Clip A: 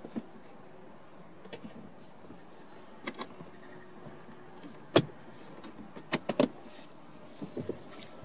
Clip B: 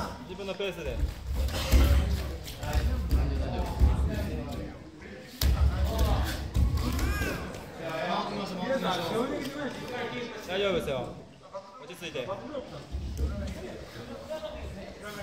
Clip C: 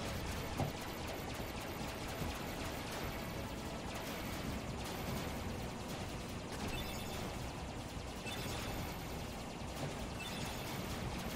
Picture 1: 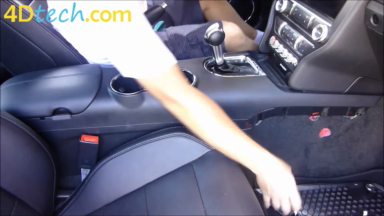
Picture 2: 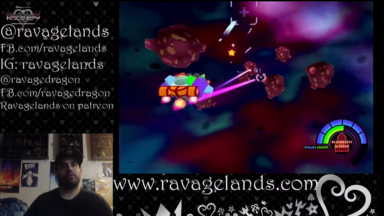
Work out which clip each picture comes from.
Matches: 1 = A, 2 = C